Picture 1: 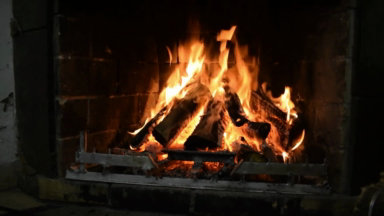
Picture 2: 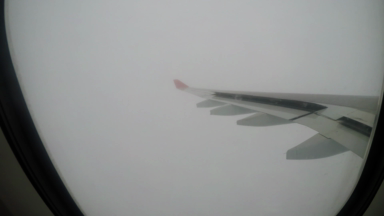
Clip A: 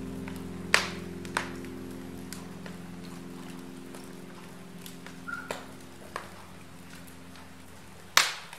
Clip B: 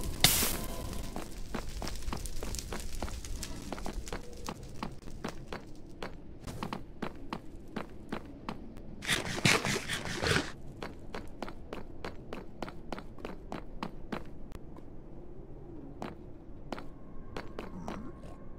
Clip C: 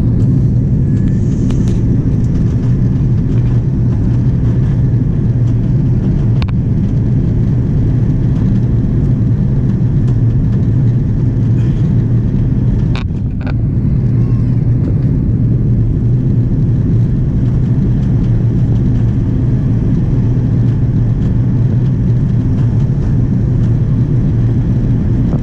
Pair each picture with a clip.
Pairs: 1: A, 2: C